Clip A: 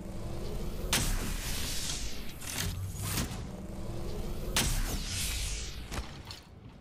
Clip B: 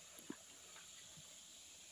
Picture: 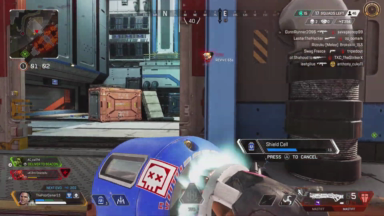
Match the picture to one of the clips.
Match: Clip A